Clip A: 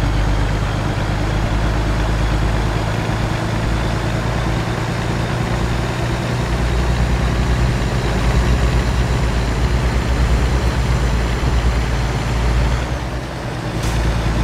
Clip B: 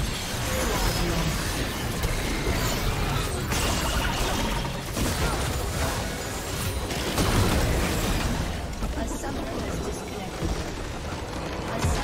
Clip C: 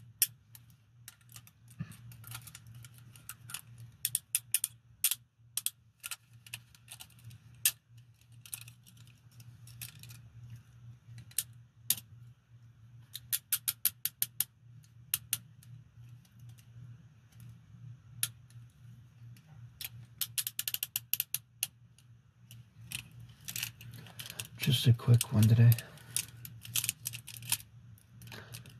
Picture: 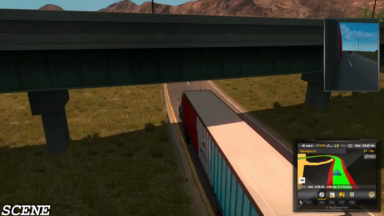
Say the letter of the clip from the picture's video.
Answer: A